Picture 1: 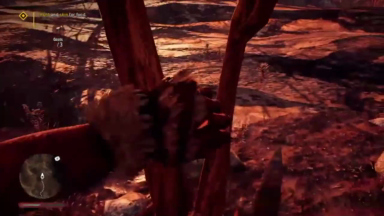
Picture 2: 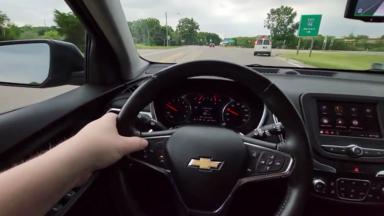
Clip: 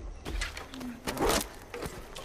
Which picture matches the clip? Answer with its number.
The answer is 1